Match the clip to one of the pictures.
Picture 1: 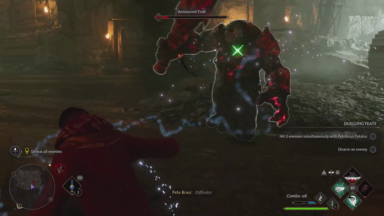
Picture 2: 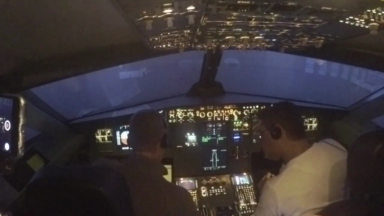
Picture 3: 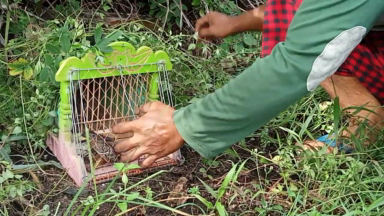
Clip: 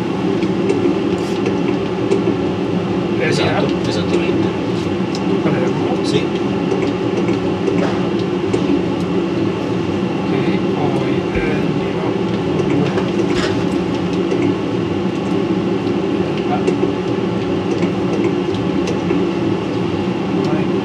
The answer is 2